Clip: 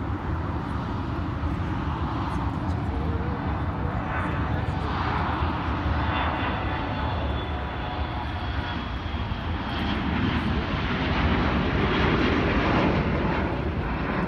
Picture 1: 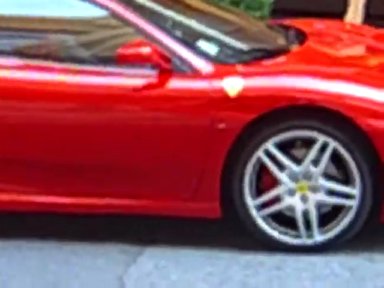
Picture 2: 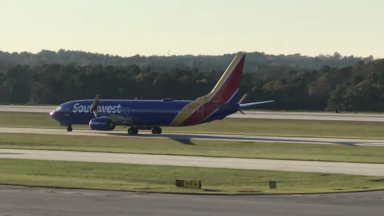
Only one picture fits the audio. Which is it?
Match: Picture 2